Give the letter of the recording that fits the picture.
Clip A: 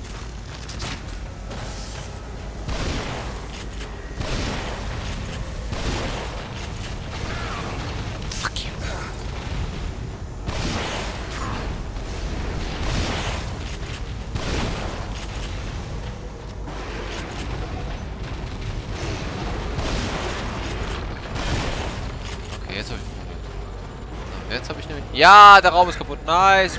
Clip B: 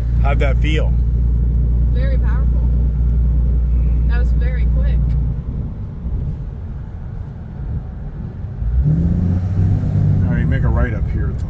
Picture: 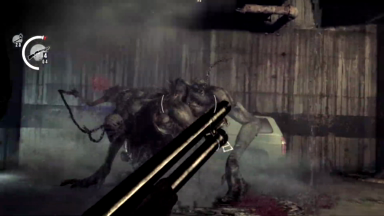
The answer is A